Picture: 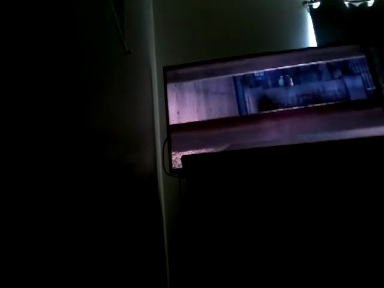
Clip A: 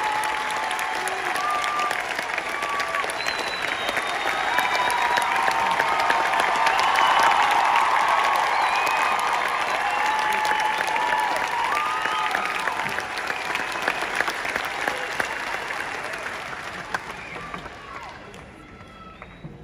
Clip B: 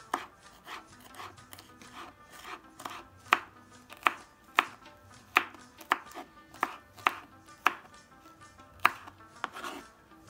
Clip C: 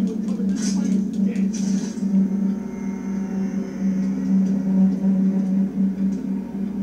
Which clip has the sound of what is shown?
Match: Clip C